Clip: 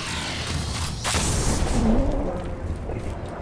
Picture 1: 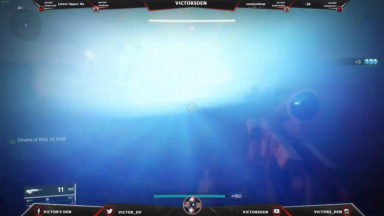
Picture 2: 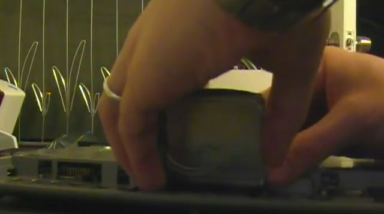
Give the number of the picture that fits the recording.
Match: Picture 1